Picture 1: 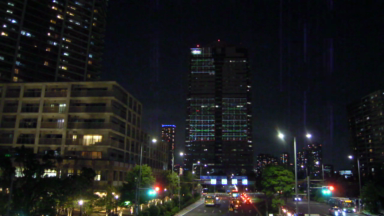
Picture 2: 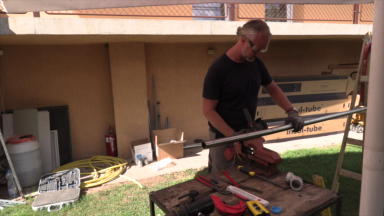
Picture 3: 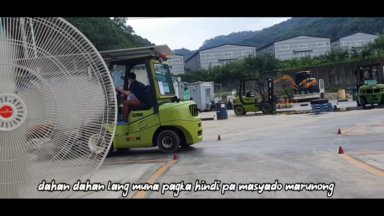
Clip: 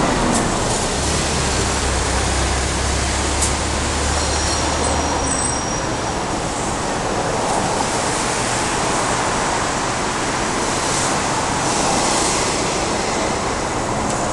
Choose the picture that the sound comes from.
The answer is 1